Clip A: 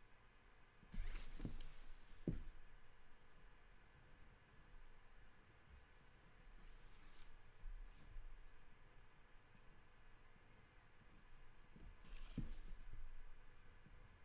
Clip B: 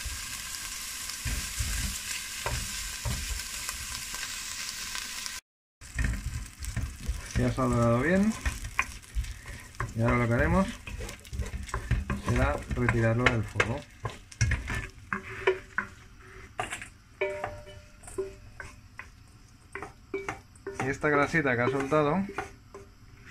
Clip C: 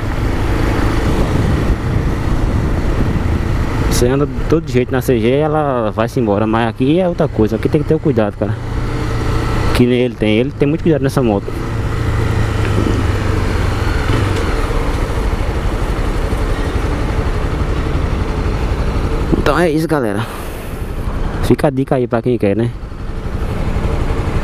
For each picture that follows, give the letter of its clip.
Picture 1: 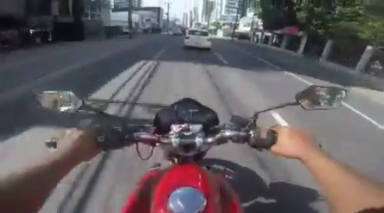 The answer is C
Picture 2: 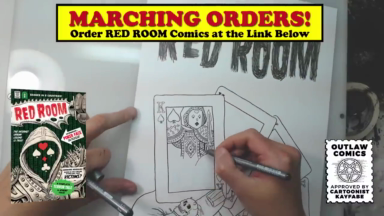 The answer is A